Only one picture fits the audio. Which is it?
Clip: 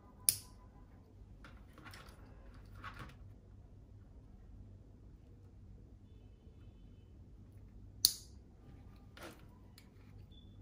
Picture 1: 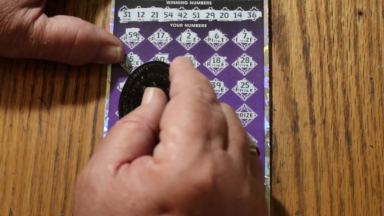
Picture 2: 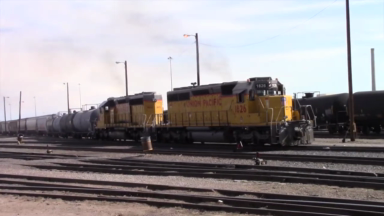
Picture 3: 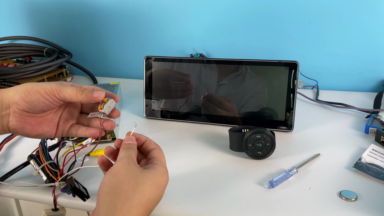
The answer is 3